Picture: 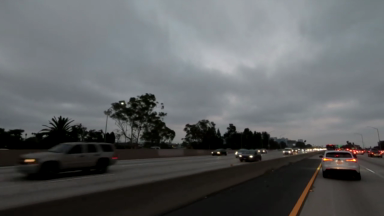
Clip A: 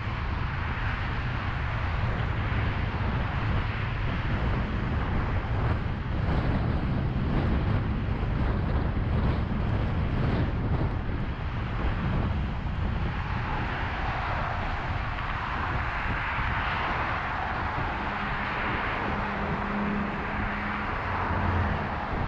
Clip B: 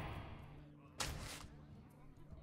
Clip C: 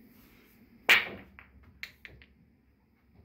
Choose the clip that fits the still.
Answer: A